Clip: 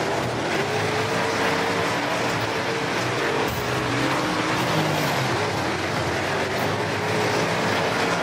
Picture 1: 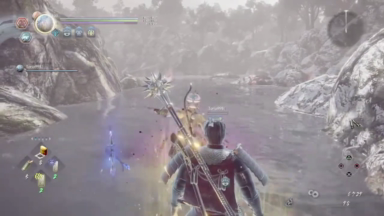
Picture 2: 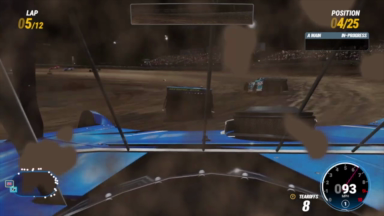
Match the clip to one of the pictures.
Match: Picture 2